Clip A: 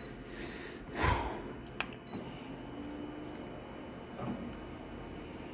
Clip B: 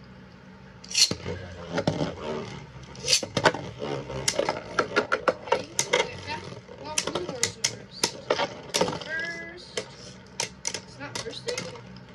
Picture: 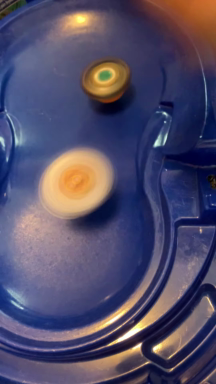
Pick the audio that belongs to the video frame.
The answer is B